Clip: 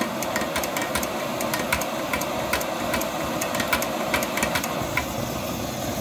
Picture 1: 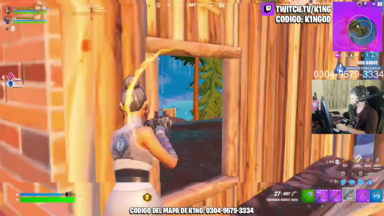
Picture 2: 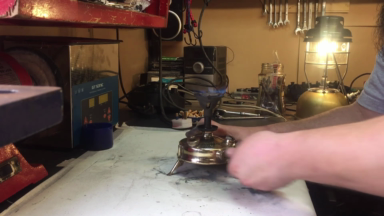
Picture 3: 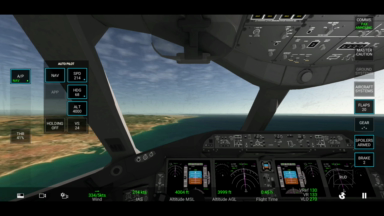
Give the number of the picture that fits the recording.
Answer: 2